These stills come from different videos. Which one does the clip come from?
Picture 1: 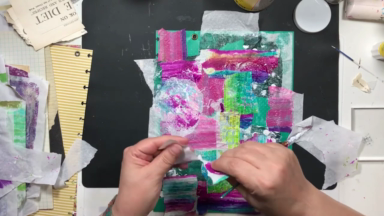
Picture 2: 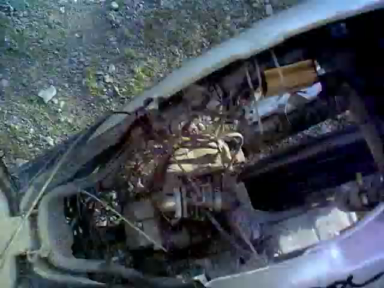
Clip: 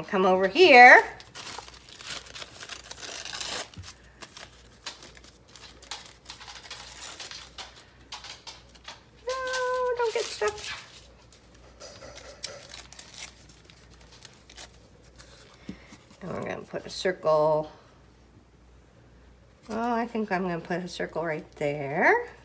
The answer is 1